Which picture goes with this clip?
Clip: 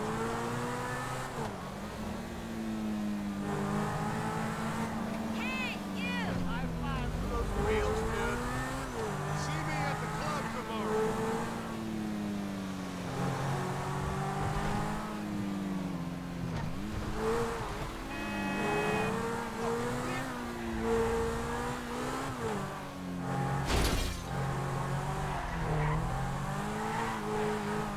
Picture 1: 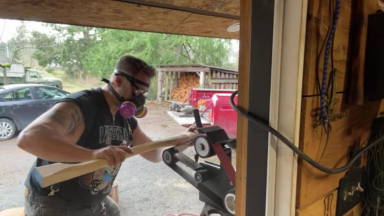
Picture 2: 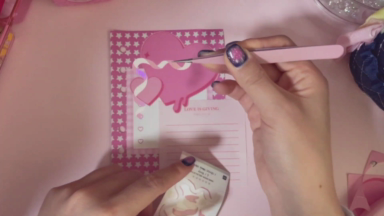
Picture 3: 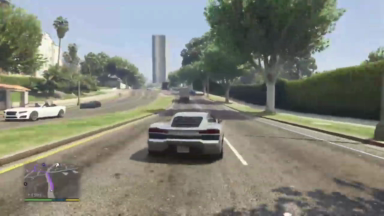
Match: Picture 3